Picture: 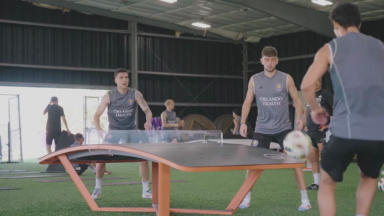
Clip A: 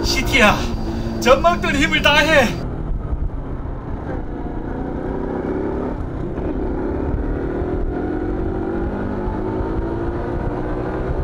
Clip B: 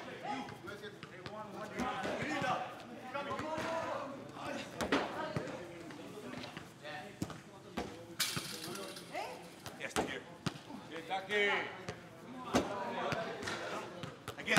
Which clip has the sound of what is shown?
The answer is B